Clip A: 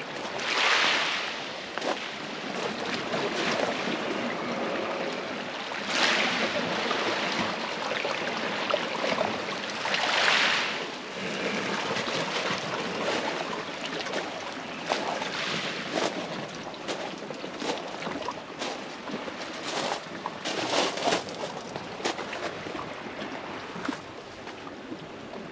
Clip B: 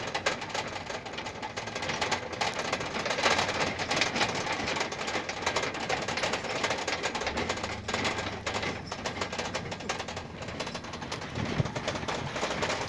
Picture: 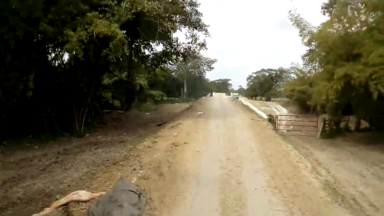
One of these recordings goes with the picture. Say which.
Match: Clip B